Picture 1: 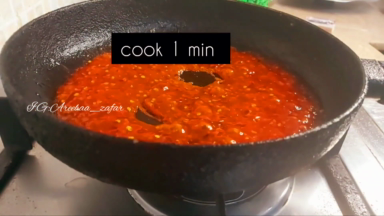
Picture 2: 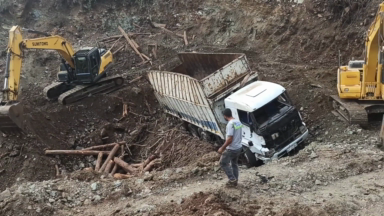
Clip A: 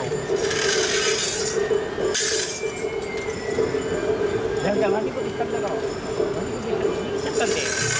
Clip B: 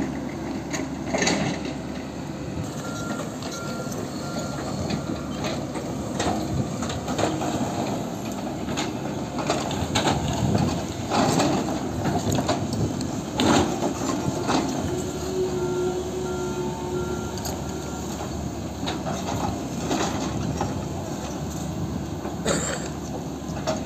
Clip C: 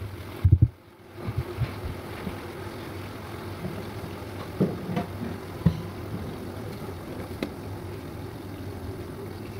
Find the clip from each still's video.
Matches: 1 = C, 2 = B